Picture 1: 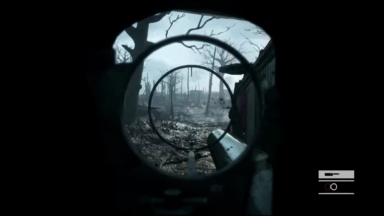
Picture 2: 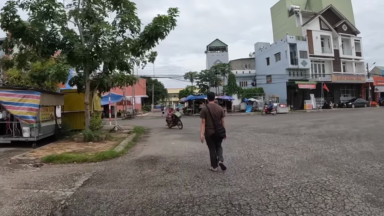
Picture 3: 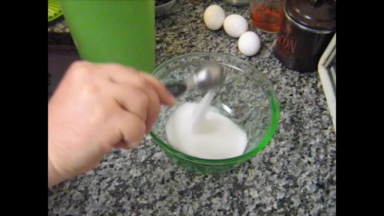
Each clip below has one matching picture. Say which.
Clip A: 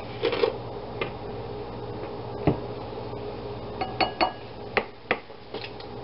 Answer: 3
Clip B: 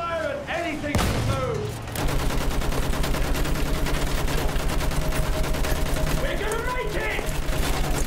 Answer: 1